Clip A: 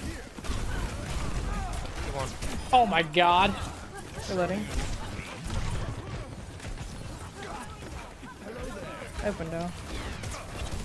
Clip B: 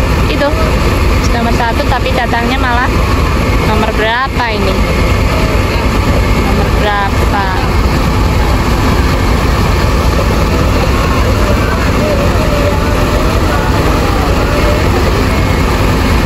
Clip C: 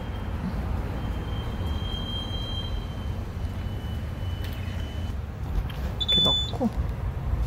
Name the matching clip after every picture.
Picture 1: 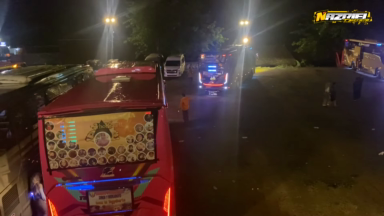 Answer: B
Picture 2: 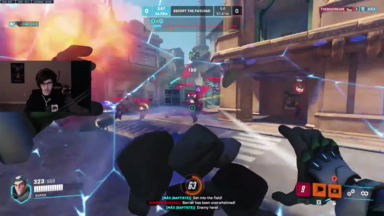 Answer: A